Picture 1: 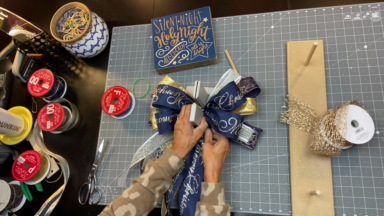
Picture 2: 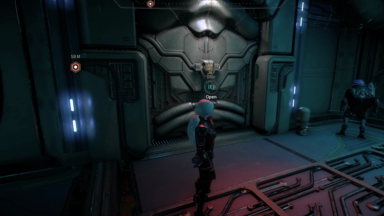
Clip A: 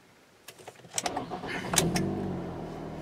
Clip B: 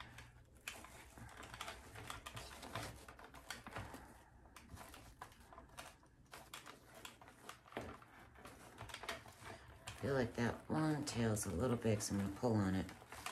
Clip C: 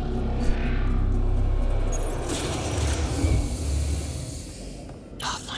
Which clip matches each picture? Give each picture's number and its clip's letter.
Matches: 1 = B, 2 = C